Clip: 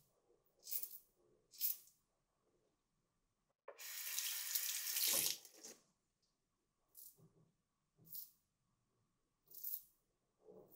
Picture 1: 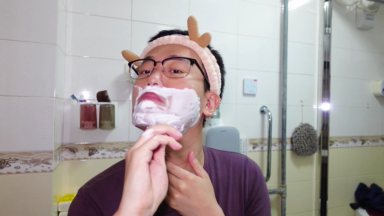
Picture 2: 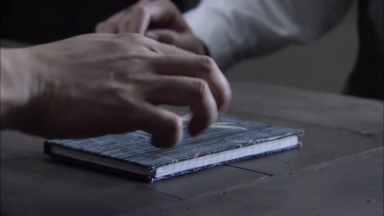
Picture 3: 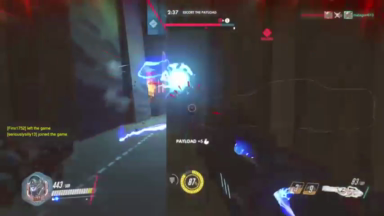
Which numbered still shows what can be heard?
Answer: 1